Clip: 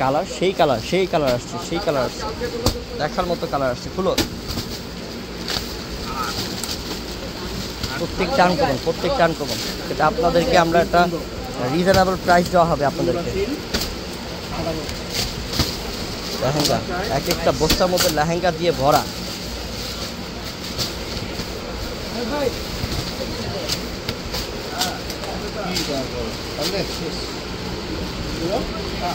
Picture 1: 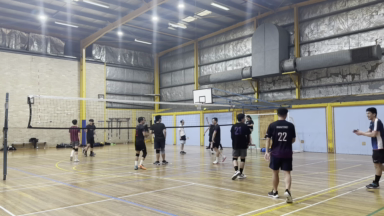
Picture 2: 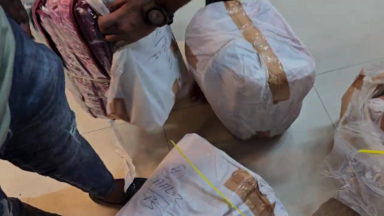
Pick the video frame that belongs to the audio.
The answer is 2